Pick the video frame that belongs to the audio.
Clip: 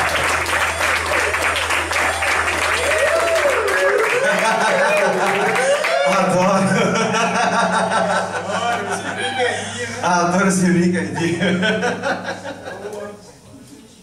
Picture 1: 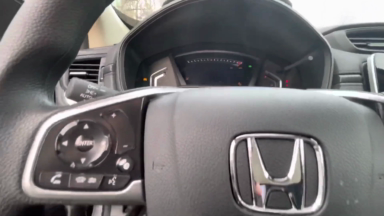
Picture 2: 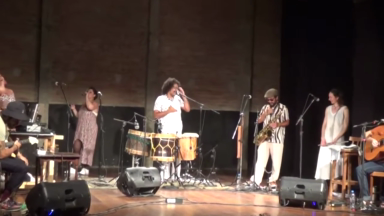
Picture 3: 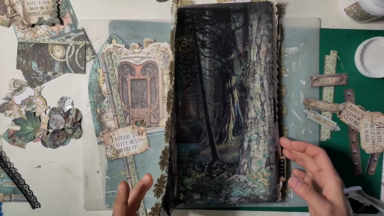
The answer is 2